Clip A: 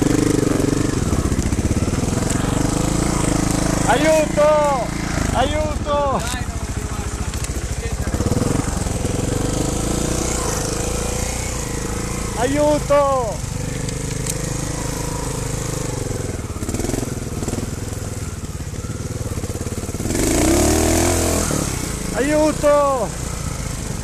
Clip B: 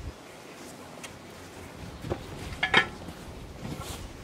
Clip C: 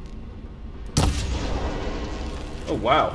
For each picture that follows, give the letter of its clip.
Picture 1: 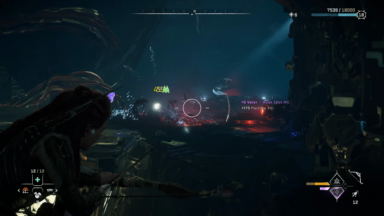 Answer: C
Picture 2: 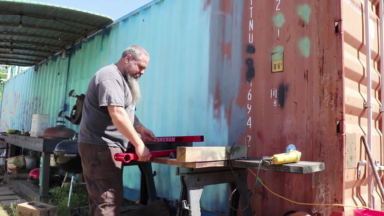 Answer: B